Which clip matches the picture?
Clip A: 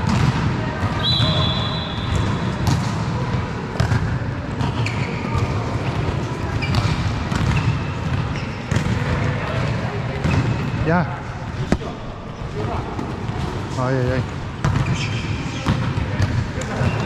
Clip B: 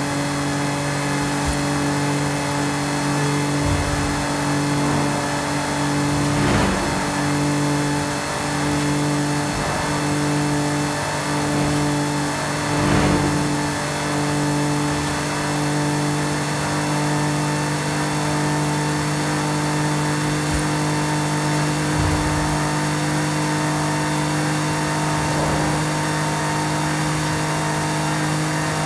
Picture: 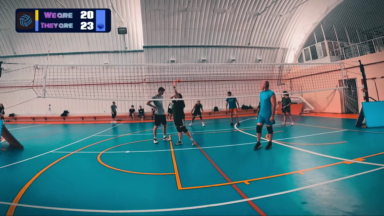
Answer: A